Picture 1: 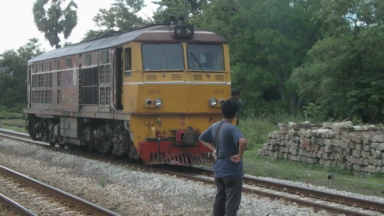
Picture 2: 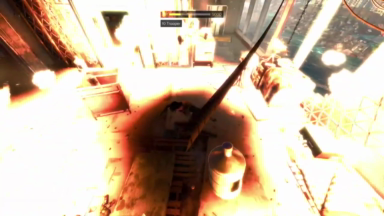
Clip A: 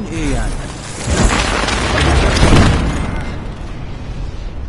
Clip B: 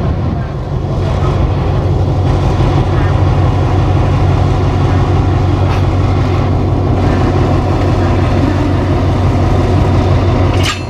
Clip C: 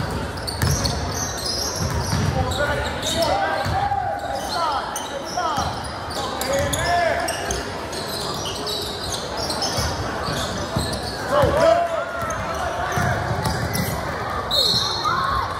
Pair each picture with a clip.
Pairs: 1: B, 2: A